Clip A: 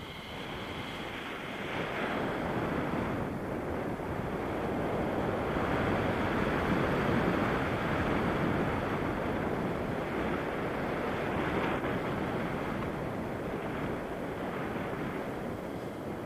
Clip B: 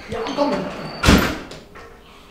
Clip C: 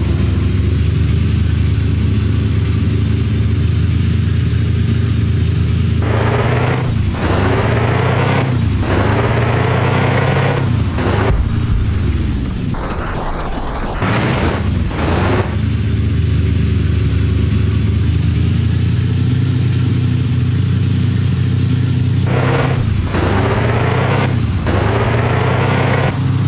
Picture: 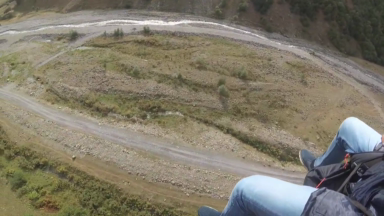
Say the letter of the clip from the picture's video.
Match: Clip A